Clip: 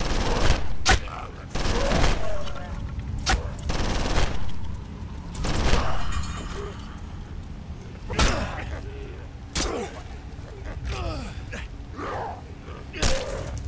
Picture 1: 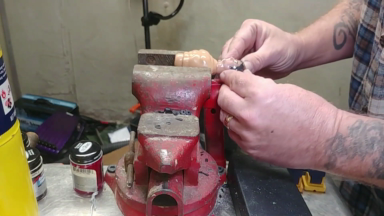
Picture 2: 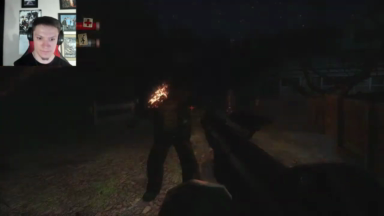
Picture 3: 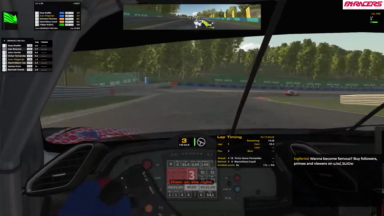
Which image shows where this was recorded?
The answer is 2